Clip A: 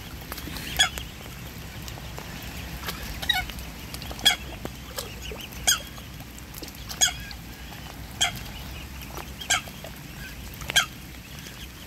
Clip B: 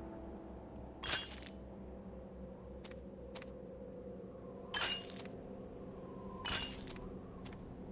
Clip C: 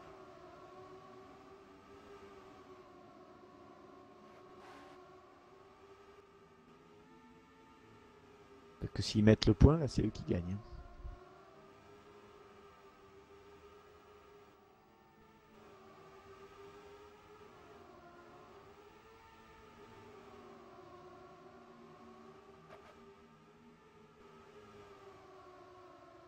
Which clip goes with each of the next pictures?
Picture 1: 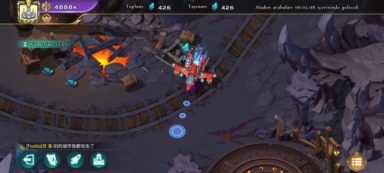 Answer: B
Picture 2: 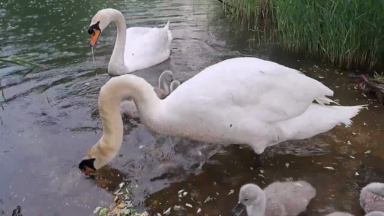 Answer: A